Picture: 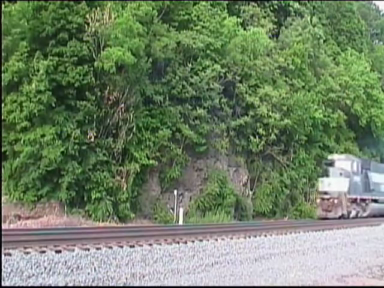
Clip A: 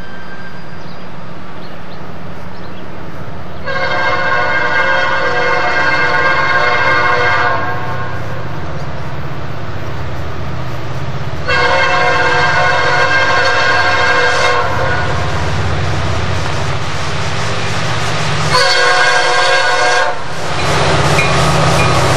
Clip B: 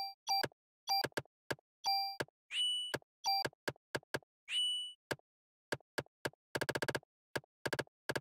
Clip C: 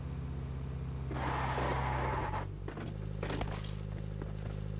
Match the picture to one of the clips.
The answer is A